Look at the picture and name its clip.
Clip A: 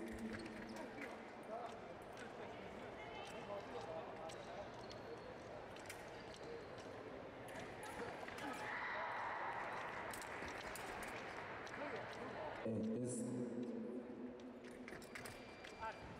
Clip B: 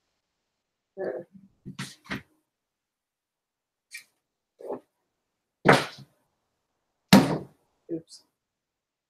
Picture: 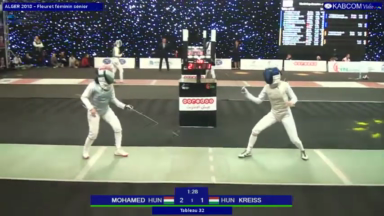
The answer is A